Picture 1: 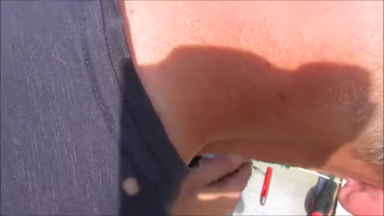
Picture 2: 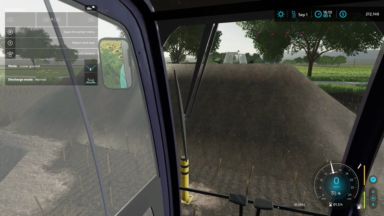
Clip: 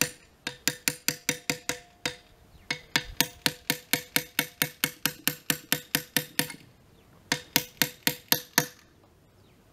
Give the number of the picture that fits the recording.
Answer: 1